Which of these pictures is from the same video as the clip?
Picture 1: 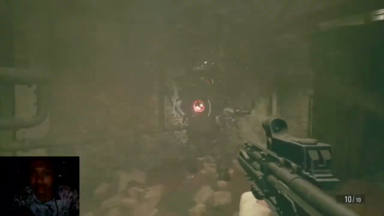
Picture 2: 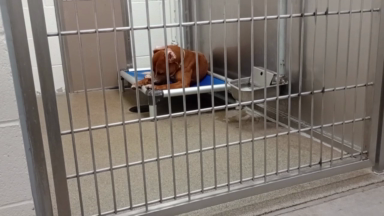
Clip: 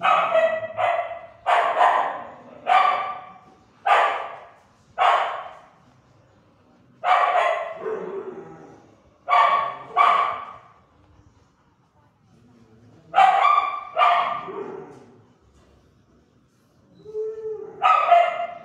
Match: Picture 2